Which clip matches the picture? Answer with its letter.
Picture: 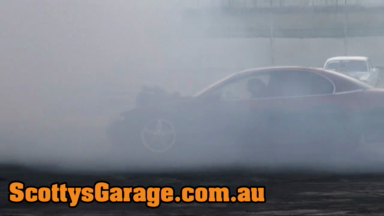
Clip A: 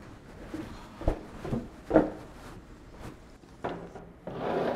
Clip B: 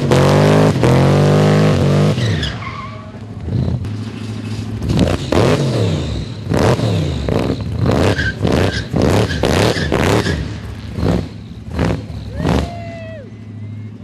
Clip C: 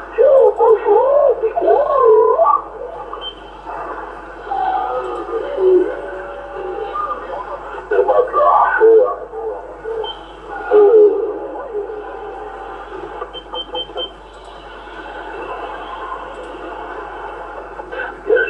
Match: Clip B